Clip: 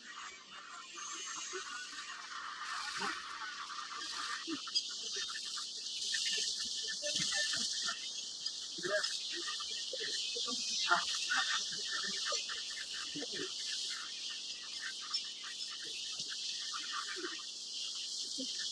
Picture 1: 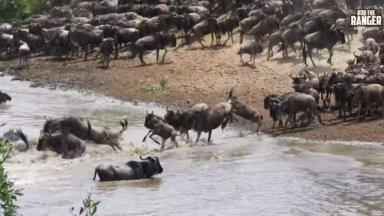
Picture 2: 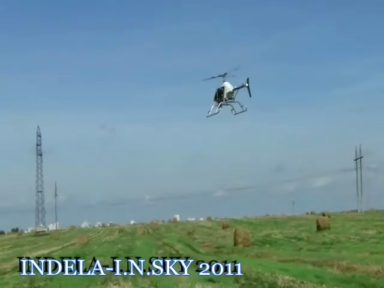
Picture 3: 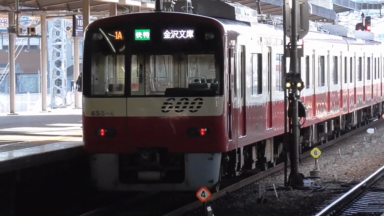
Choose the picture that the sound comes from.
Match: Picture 1